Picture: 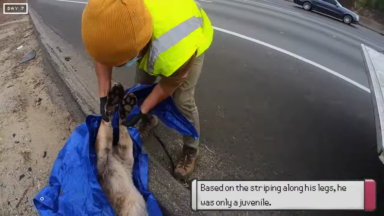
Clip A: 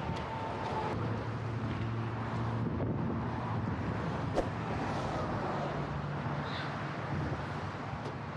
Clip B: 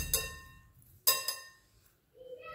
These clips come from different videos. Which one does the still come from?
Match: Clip A